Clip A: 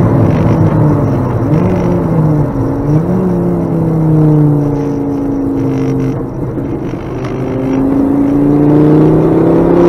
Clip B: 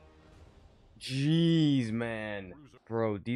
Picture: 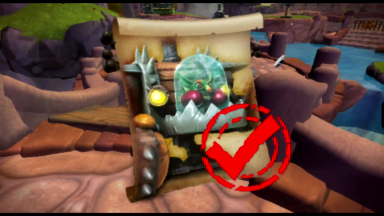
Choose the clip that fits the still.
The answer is B